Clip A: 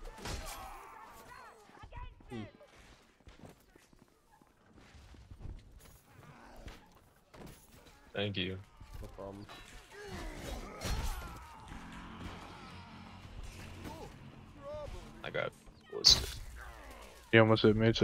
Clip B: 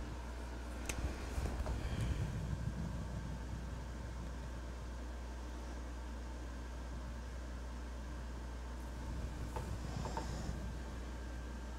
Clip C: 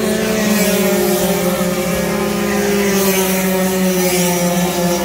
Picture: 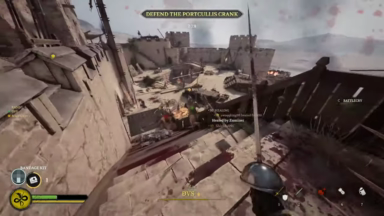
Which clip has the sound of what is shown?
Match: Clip A